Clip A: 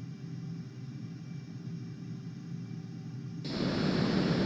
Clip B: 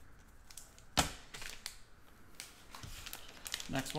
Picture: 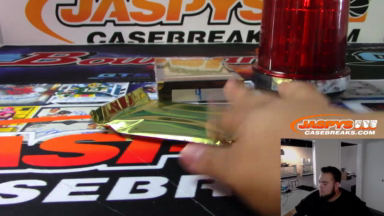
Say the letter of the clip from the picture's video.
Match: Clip B